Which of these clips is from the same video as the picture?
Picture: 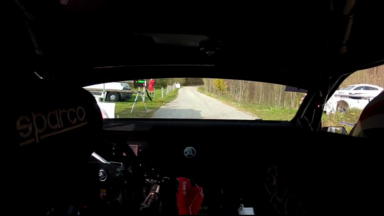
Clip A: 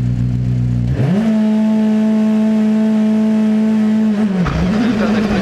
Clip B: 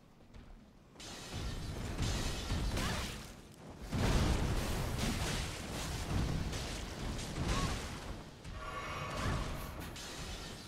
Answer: A